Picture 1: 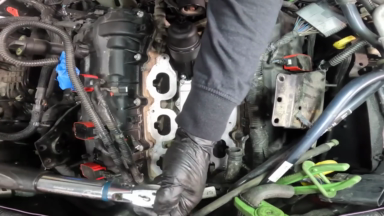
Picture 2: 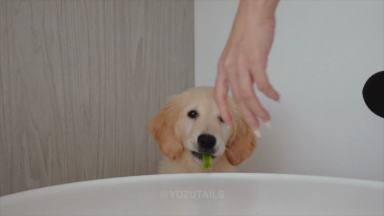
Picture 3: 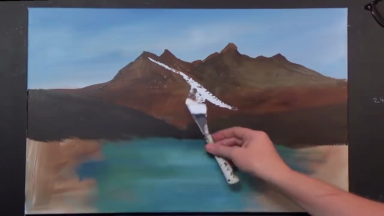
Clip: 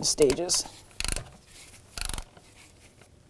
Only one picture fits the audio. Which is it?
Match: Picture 1